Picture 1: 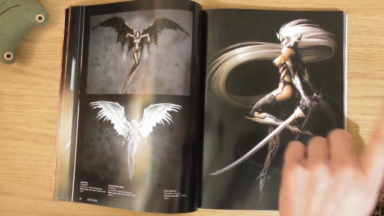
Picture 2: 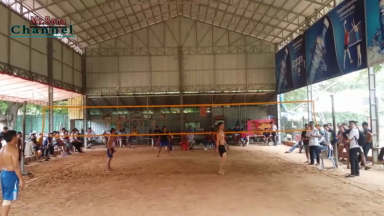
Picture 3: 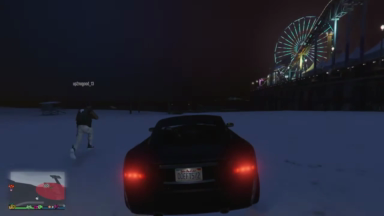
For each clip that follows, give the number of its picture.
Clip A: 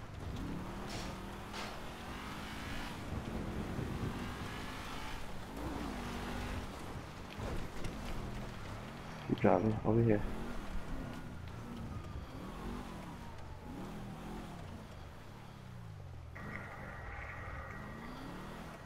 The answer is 3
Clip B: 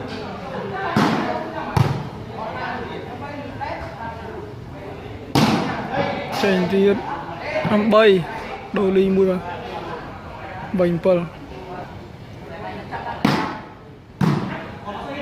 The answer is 2